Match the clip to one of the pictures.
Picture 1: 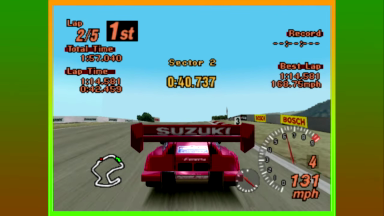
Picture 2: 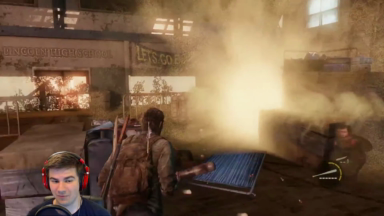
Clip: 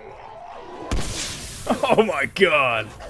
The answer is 2